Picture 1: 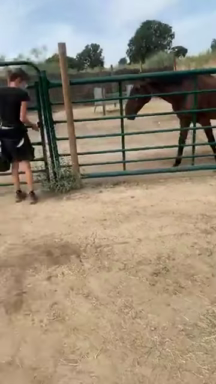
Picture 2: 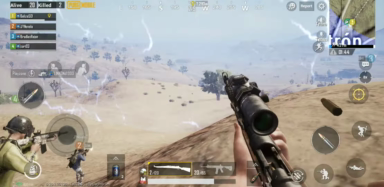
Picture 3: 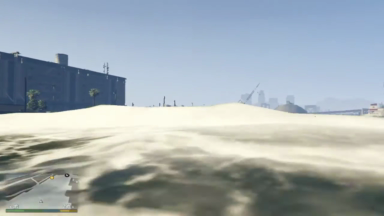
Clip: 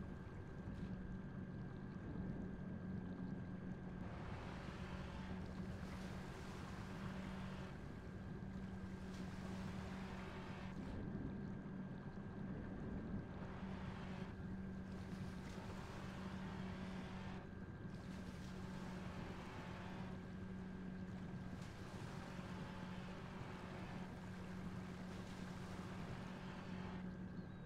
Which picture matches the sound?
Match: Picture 3